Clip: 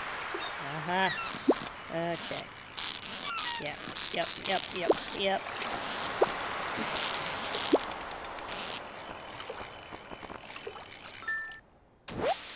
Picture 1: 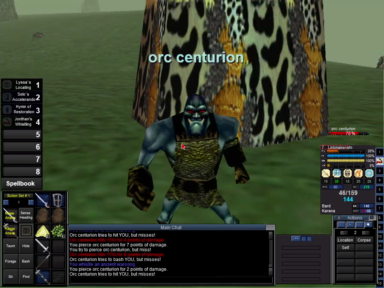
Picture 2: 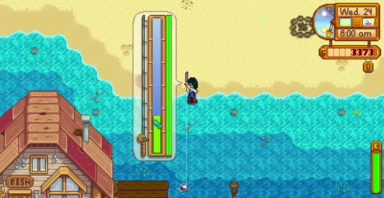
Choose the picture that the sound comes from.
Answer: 2